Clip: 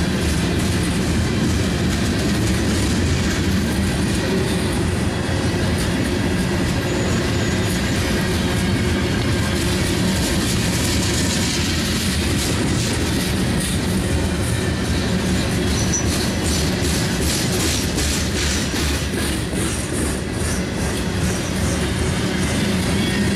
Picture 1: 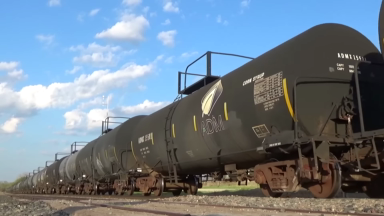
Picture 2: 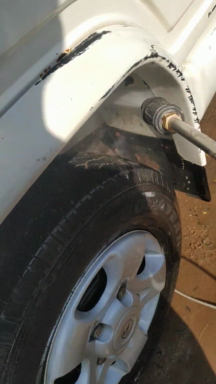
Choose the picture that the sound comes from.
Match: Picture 1